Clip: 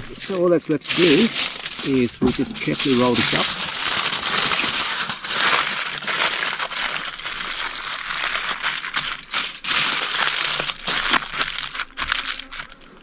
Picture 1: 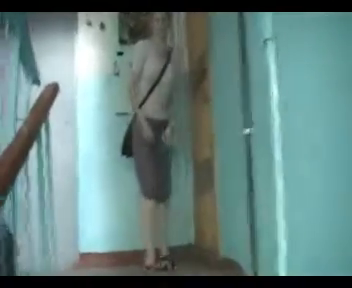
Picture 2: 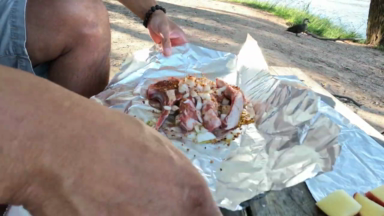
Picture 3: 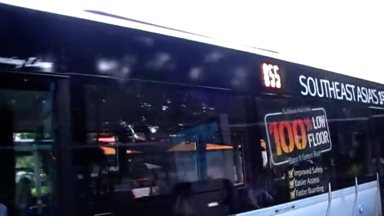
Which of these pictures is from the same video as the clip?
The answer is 2